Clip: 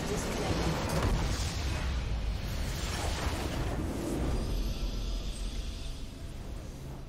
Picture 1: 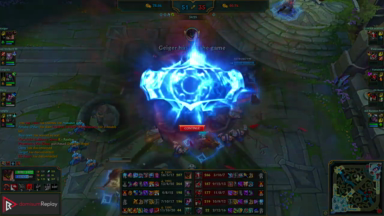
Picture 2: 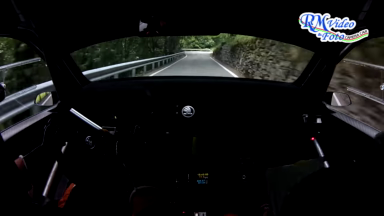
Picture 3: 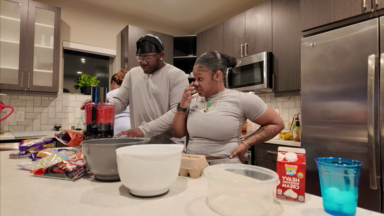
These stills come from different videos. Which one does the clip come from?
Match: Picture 1